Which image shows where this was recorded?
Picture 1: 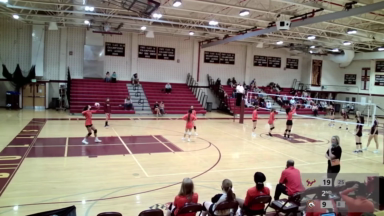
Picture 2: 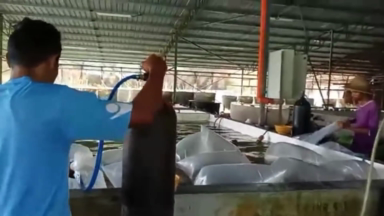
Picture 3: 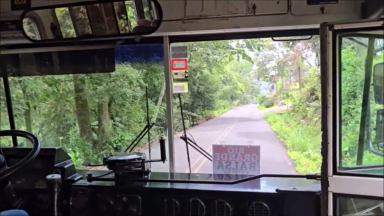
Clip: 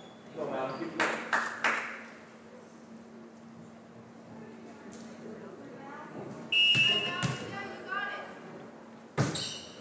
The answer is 1